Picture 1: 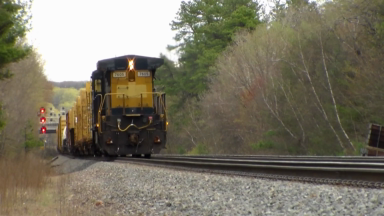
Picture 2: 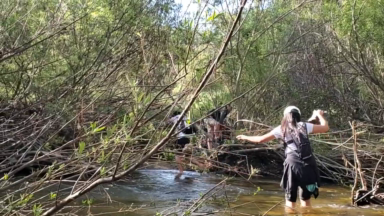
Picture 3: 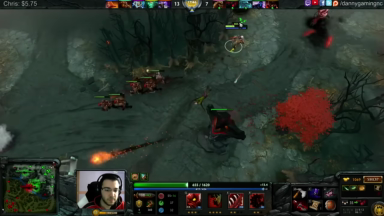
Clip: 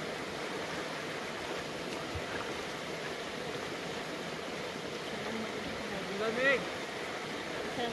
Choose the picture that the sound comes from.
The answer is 2